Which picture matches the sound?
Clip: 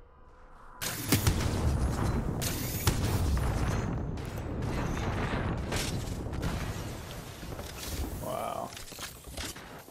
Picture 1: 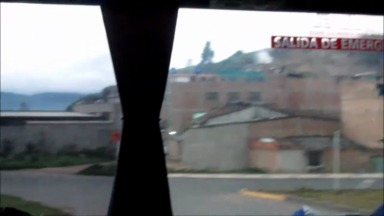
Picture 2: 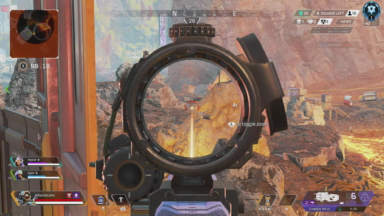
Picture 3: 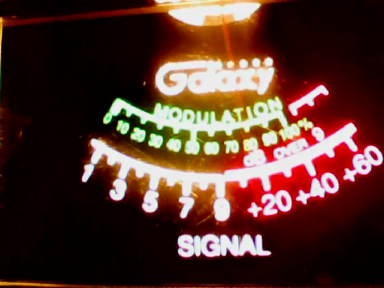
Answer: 2